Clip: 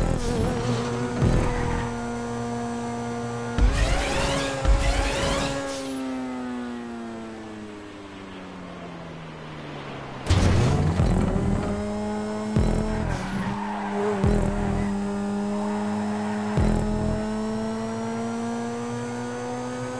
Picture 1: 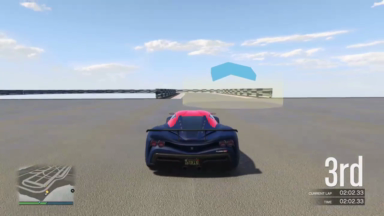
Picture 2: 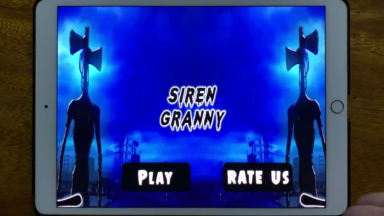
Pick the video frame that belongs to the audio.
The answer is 1